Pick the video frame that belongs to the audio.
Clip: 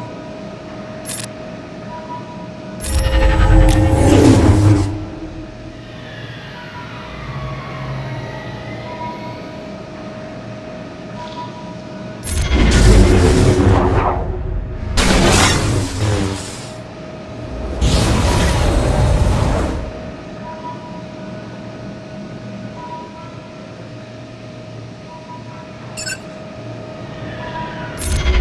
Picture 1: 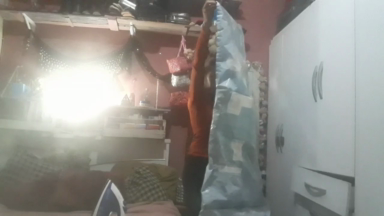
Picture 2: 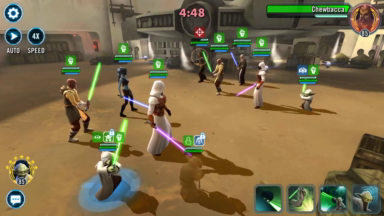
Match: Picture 2